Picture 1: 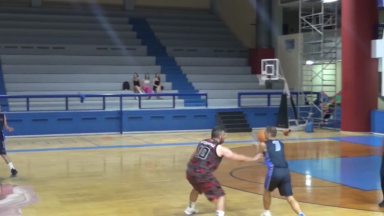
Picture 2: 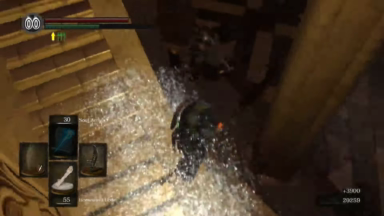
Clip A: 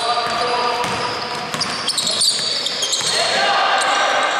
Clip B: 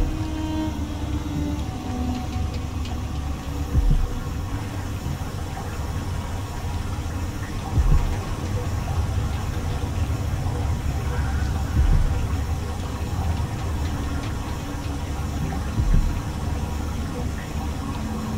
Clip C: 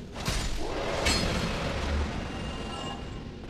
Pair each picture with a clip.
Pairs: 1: A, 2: C